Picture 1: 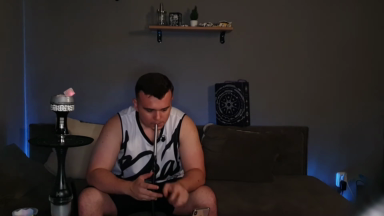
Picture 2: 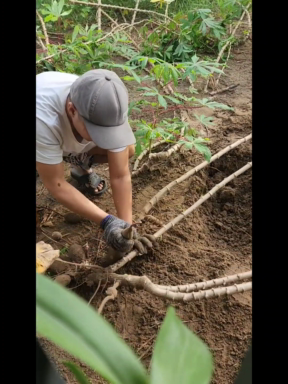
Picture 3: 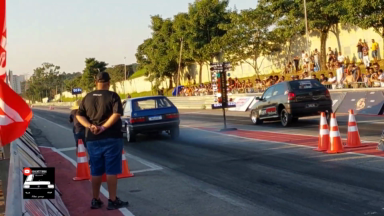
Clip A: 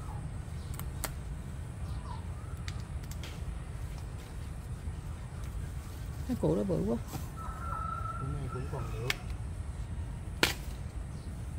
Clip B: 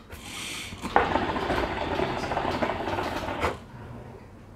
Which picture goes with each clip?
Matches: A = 2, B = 1